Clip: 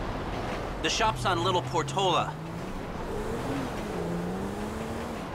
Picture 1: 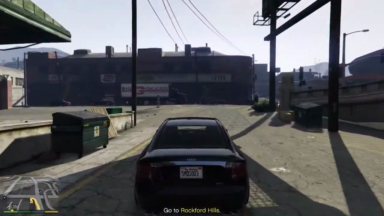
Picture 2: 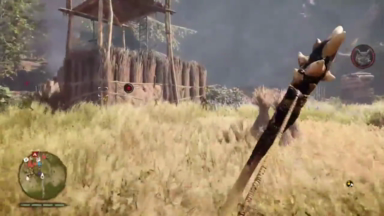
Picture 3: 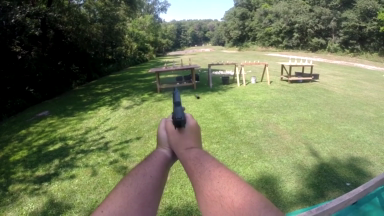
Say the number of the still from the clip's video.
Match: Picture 1